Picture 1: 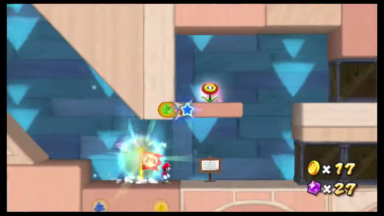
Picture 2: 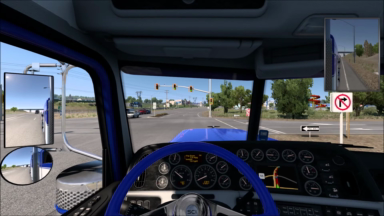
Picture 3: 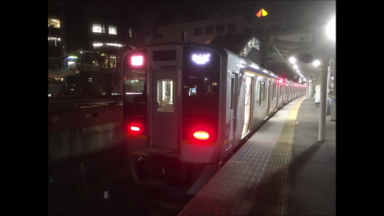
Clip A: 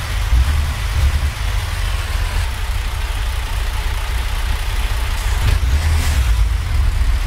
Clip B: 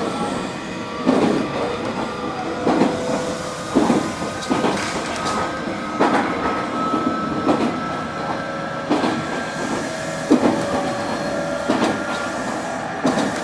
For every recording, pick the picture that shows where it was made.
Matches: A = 2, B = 3